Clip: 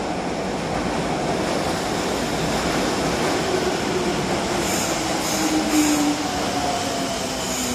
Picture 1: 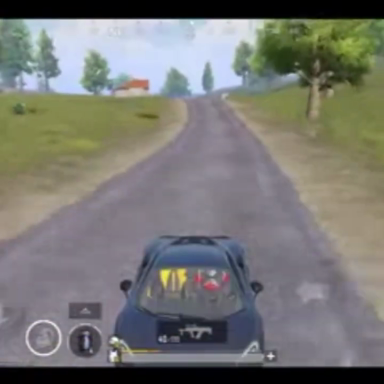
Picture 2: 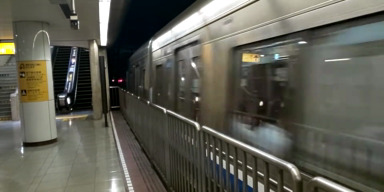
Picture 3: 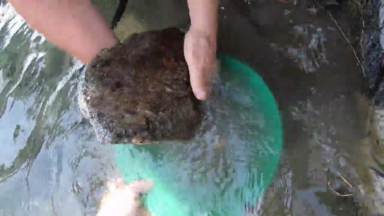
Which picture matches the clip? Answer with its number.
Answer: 2